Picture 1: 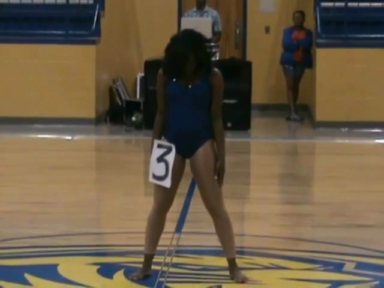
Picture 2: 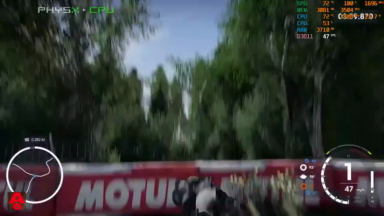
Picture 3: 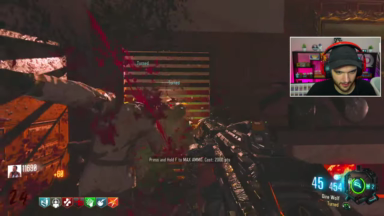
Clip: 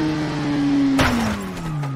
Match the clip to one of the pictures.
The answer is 2